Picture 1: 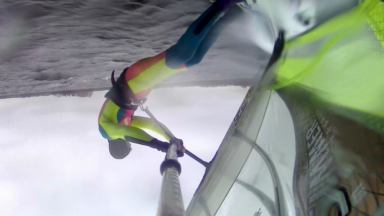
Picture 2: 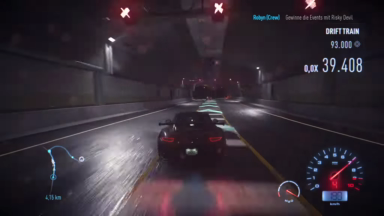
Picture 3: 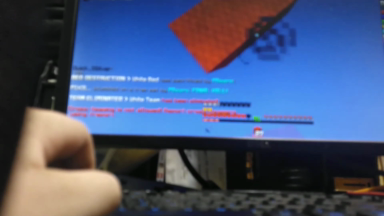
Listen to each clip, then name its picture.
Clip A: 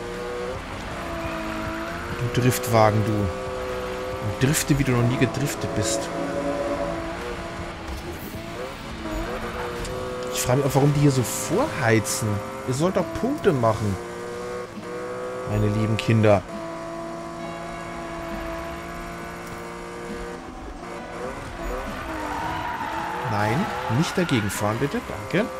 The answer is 2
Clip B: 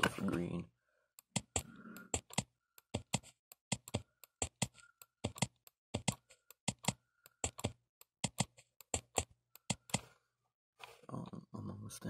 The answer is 3